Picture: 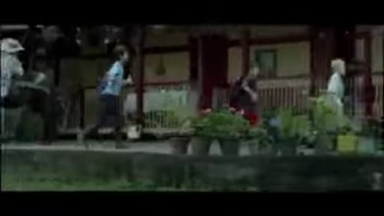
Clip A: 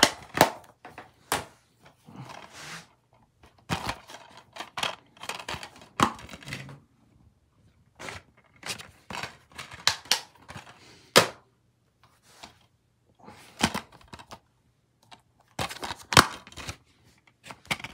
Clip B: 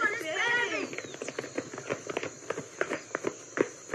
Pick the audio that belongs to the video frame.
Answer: B